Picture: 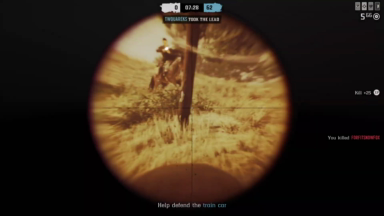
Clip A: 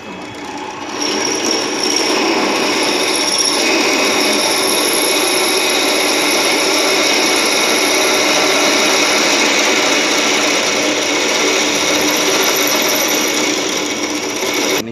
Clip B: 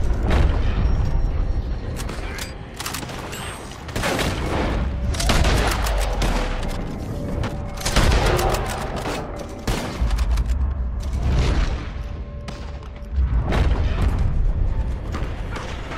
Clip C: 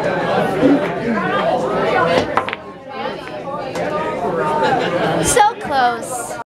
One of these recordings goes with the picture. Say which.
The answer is B